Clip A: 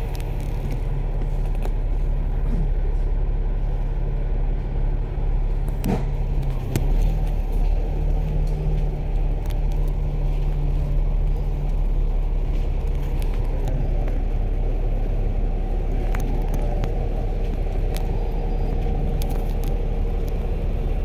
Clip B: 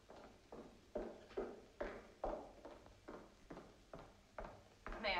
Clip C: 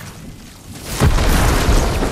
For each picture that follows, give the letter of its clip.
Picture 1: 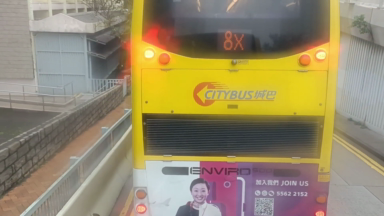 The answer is A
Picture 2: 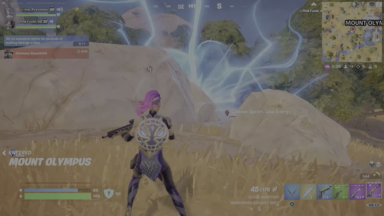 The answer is C